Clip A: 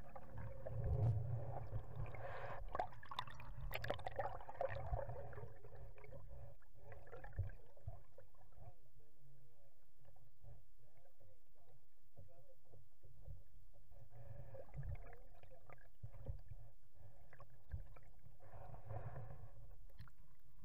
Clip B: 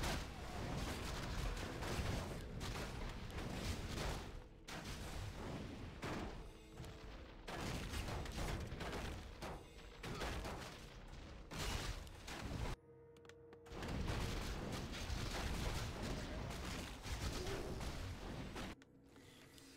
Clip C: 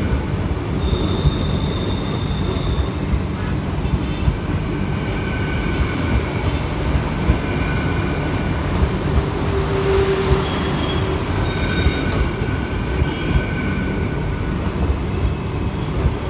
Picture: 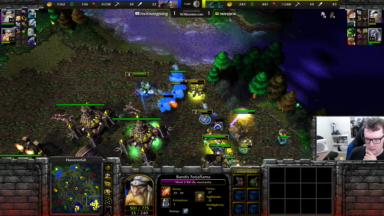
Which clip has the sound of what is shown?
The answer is B